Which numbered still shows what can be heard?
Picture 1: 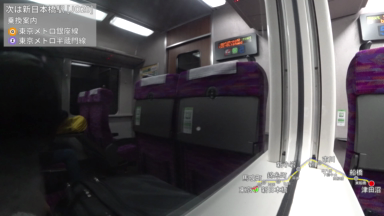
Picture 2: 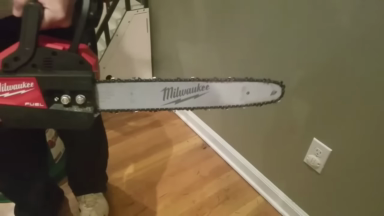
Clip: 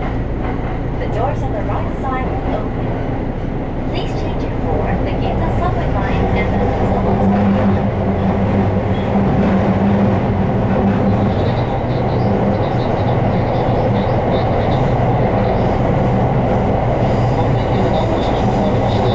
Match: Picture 1